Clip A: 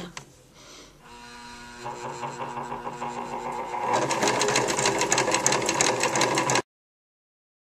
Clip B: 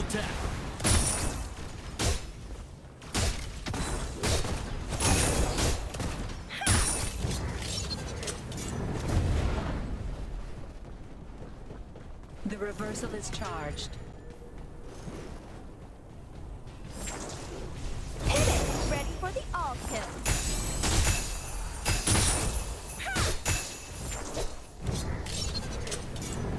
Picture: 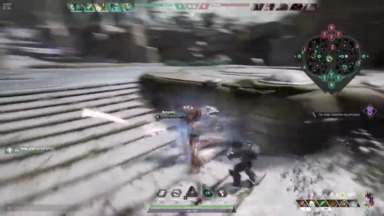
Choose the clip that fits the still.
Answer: B